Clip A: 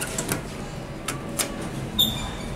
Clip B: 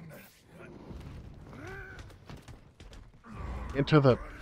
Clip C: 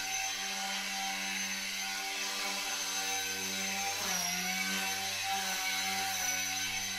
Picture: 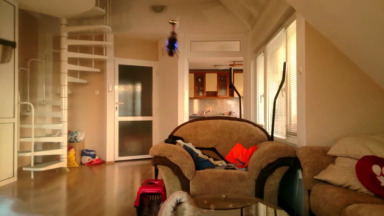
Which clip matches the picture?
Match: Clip C